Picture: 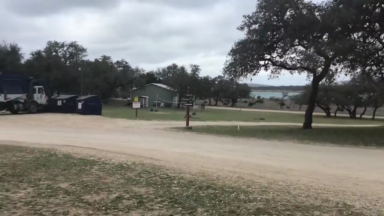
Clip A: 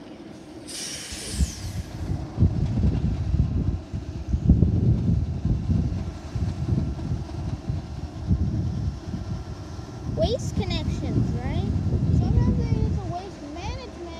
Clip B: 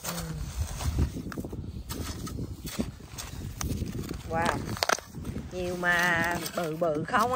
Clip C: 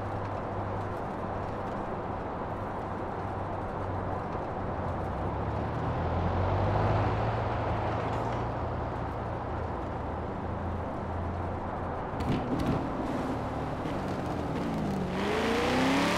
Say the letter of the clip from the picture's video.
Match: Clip A